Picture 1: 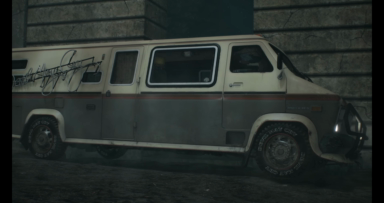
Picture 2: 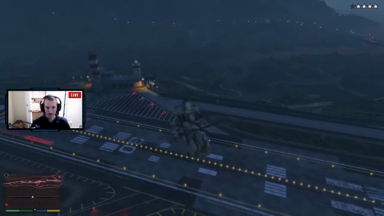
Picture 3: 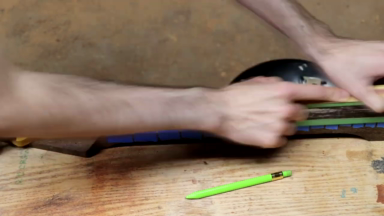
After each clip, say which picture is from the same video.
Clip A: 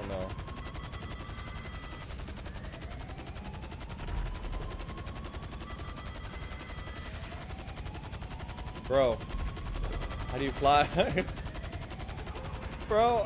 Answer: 2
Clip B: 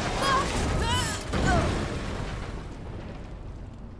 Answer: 1